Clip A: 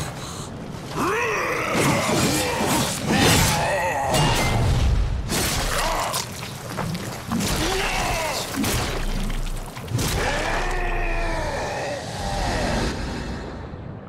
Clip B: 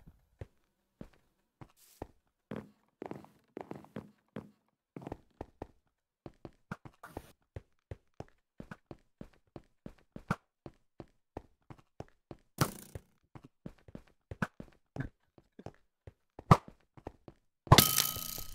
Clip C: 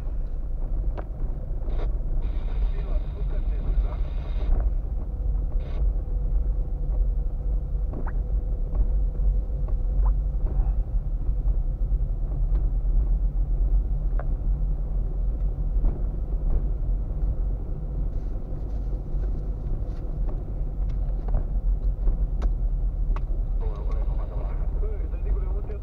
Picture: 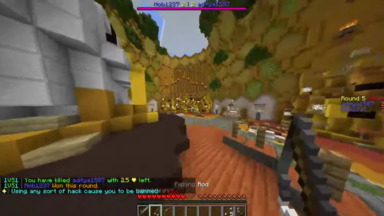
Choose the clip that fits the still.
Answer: B